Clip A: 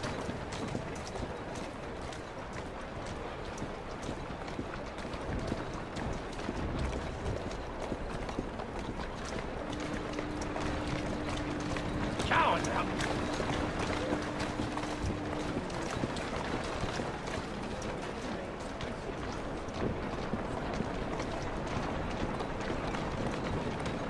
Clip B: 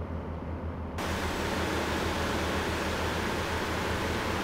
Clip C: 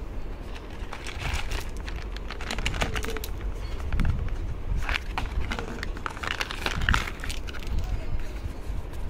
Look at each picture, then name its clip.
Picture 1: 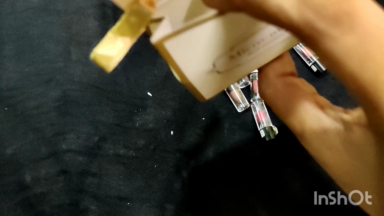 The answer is C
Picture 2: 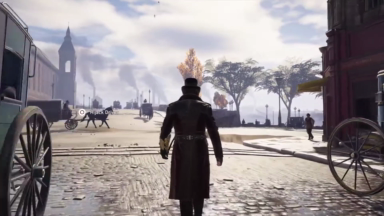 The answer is A